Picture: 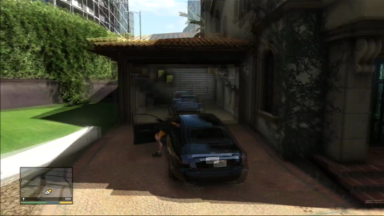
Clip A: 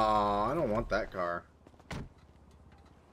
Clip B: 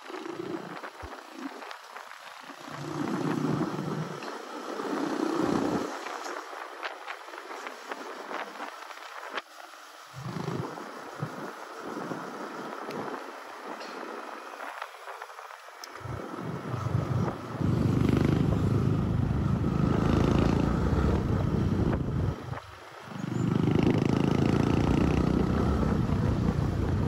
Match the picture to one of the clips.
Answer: A